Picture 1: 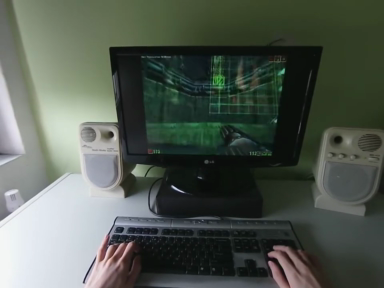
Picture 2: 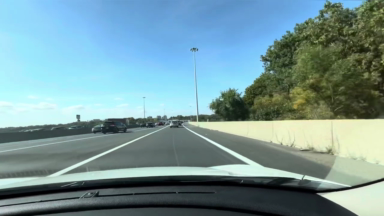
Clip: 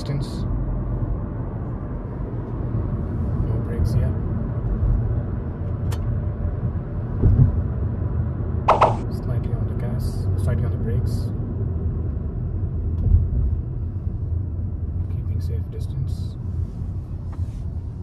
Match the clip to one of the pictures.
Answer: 2